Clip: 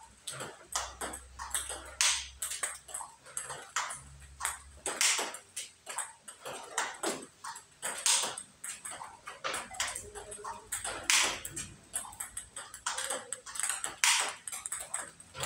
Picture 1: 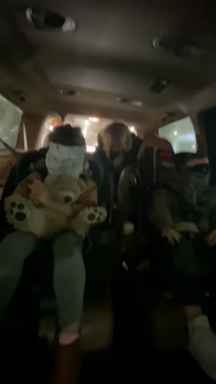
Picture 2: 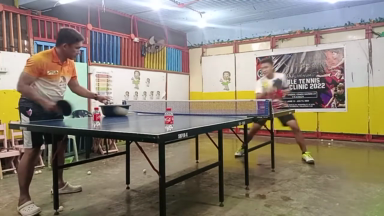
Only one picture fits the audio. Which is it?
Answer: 2